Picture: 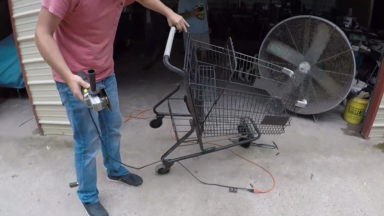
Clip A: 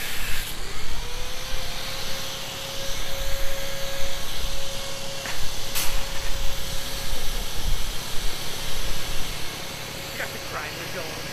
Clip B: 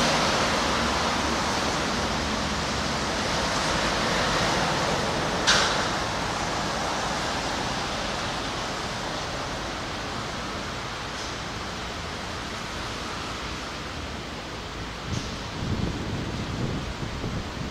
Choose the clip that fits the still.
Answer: A